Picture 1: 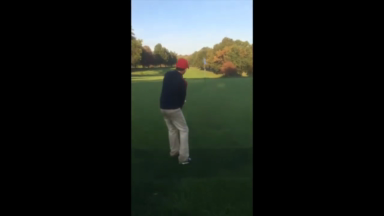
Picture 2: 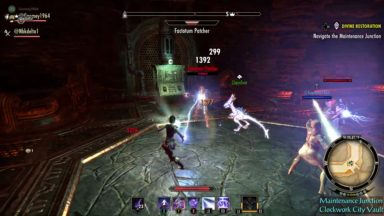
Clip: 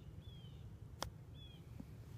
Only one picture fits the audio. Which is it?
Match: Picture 1